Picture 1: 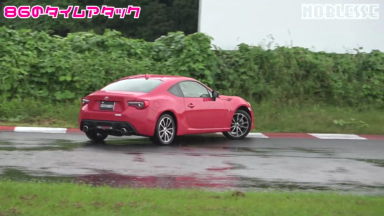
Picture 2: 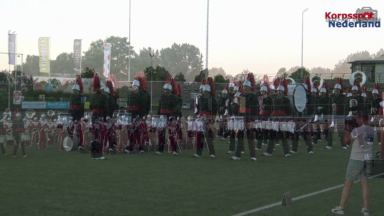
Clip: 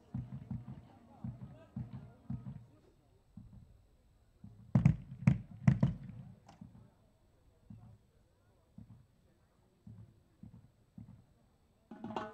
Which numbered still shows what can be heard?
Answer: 2